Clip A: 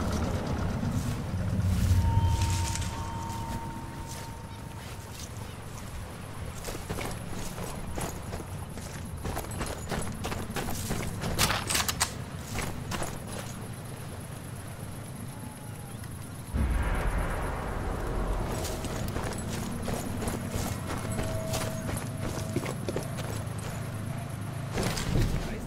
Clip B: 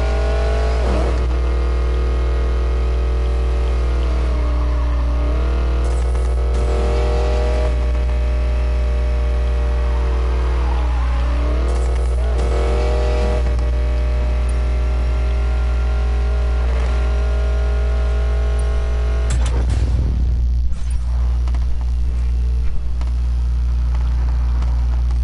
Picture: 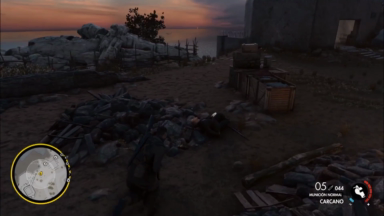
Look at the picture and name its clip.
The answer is A